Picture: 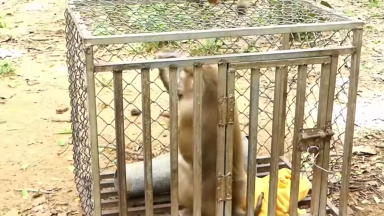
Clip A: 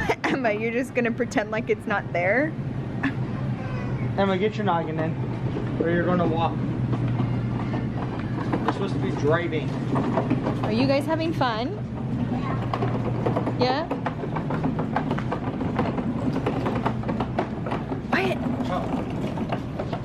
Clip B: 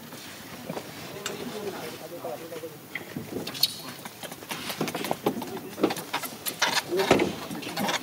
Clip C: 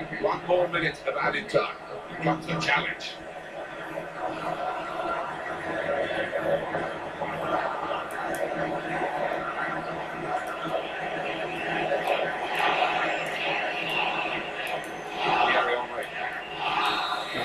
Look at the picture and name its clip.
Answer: B